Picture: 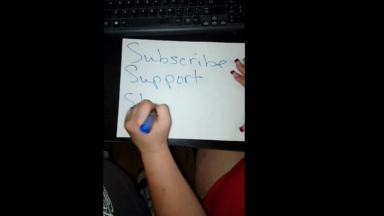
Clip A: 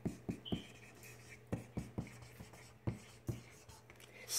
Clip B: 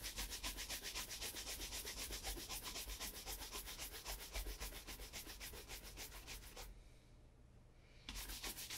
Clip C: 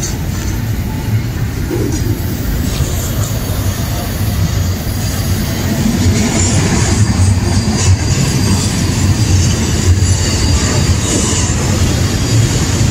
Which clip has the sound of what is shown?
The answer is A